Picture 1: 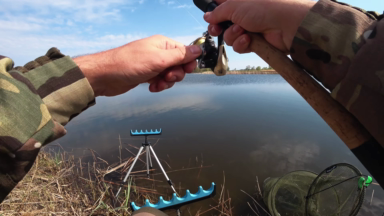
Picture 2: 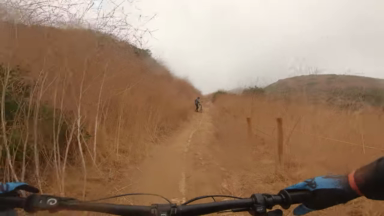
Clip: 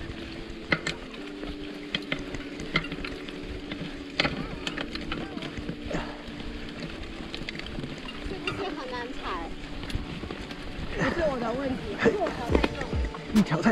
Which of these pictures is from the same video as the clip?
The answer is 2